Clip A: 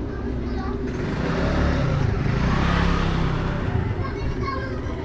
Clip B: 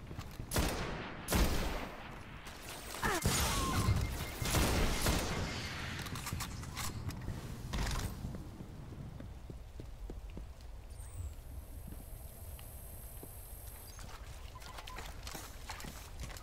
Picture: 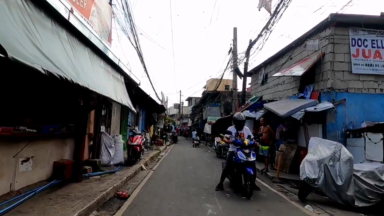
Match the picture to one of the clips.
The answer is A